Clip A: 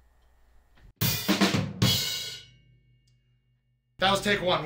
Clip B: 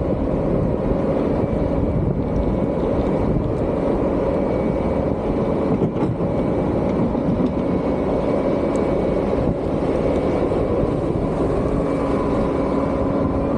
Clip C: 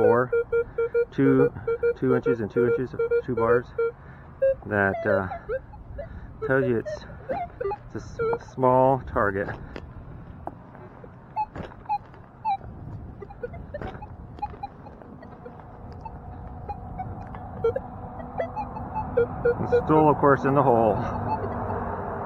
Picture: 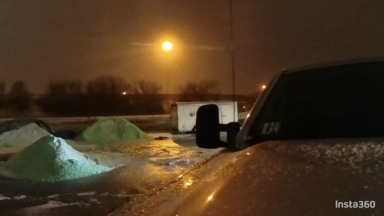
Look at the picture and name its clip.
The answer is B